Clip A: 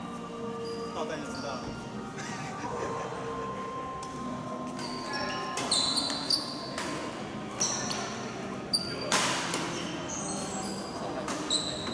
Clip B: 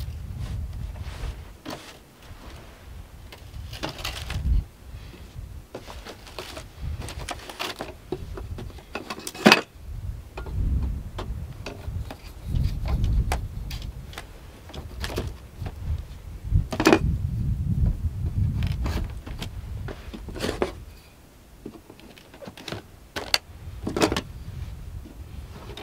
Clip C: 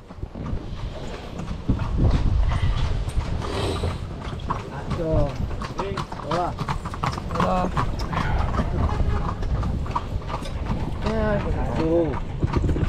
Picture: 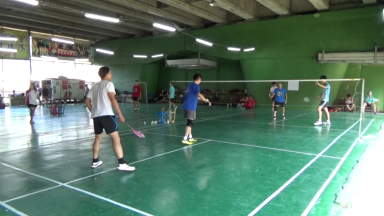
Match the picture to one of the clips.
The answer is A